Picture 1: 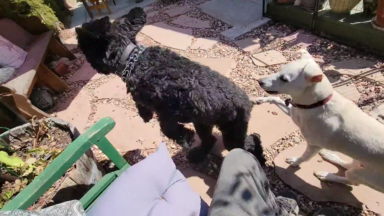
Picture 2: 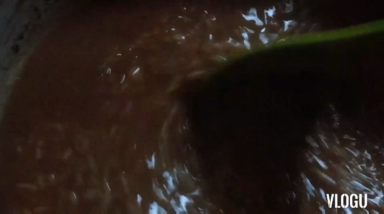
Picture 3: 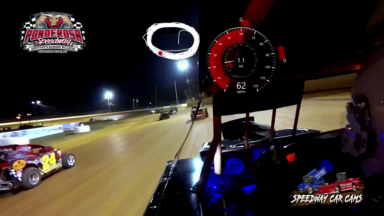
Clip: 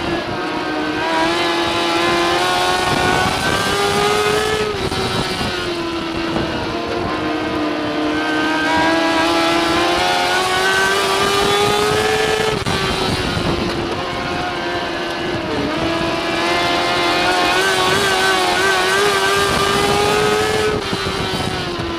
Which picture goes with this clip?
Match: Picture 3